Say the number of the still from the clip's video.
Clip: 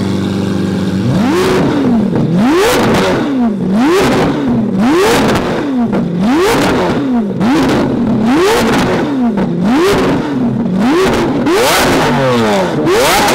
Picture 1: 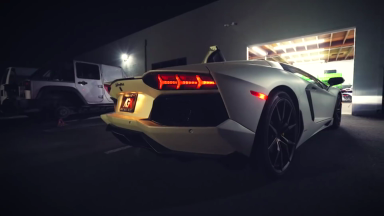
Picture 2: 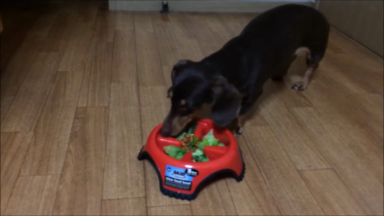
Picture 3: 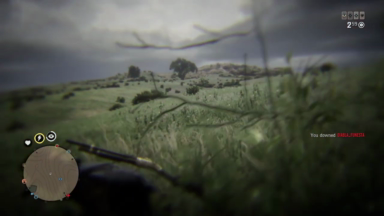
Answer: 1